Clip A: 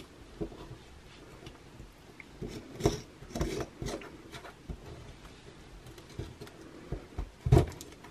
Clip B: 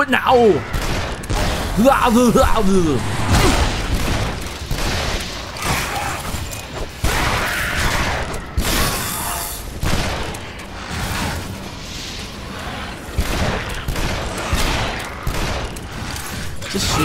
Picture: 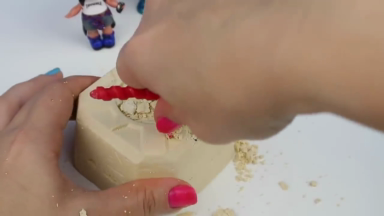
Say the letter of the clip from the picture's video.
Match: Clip A